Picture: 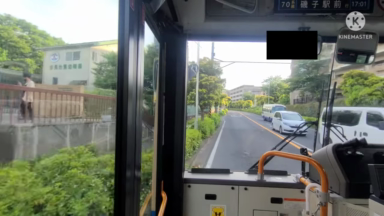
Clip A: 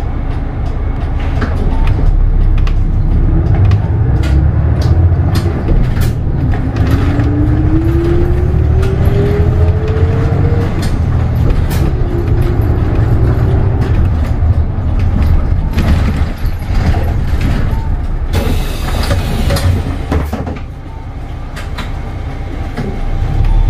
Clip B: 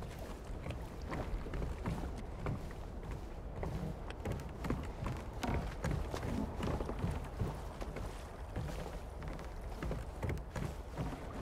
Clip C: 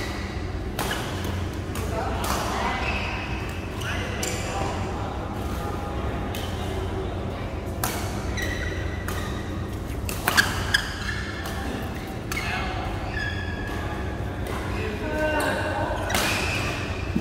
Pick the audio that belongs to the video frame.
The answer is A